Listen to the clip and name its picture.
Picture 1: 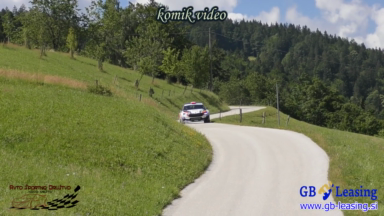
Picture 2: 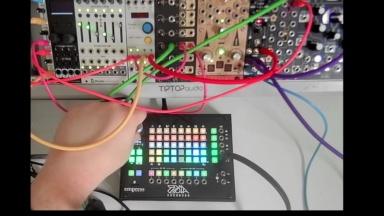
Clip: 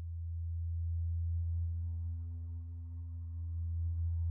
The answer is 2